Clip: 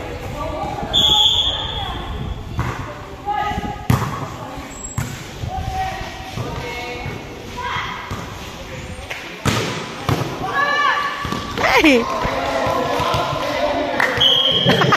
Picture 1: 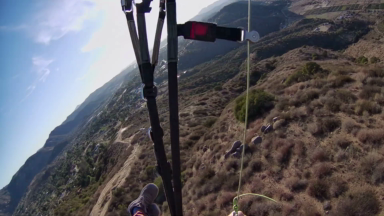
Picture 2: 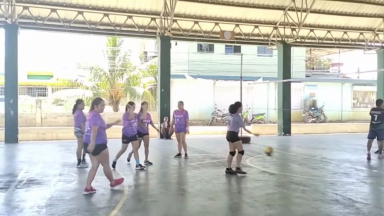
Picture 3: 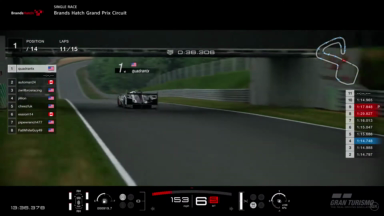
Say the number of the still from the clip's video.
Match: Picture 2